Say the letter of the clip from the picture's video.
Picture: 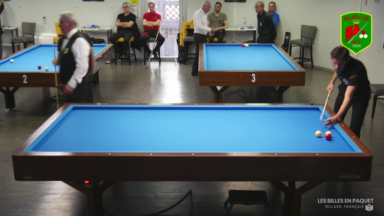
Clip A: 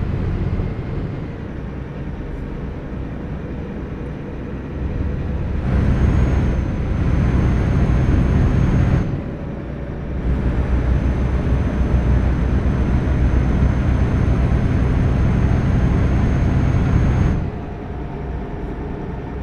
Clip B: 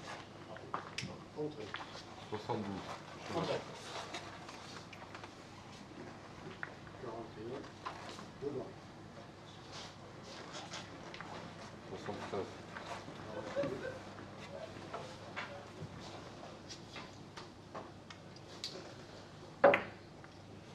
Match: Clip B